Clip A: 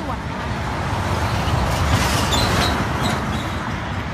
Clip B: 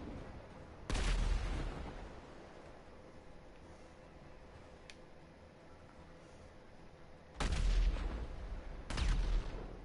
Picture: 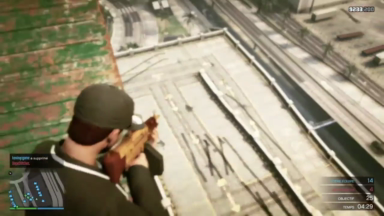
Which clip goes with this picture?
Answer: B